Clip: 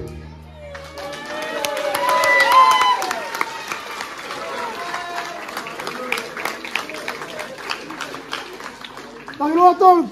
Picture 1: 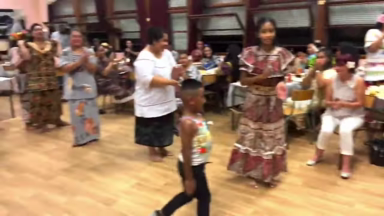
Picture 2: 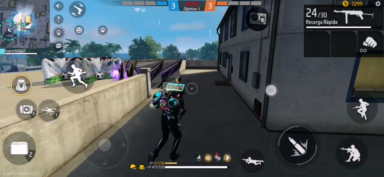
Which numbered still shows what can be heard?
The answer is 1